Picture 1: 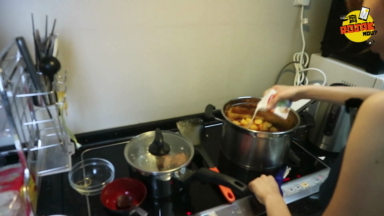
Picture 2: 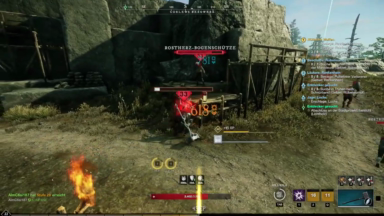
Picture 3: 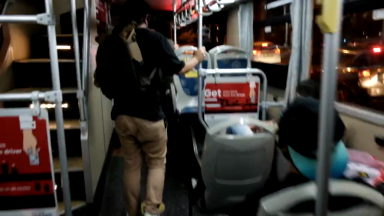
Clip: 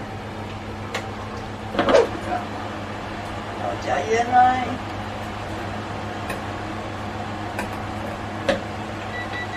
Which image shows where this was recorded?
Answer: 1